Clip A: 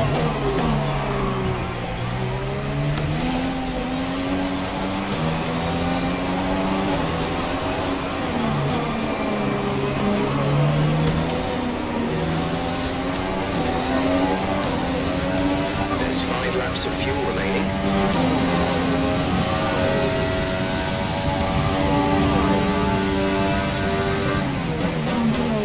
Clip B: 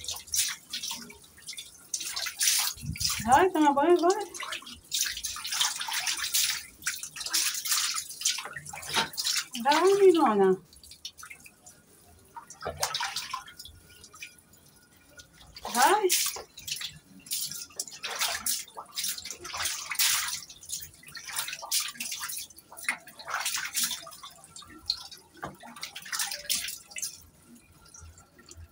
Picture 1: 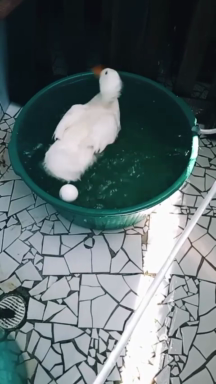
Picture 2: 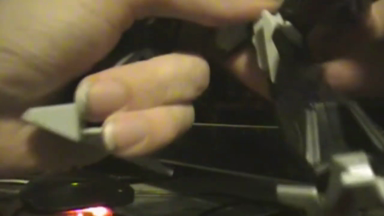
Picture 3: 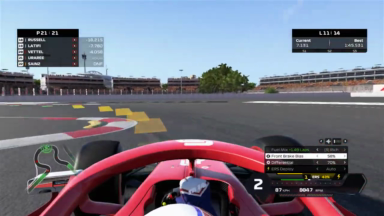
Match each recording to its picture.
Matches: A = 3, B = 1